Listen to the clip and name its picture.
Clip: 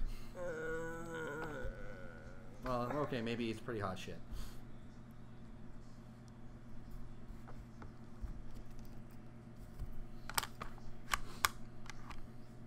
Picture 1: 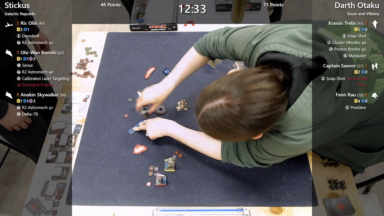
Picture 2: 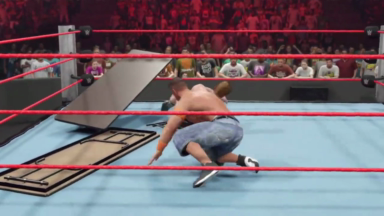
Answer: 1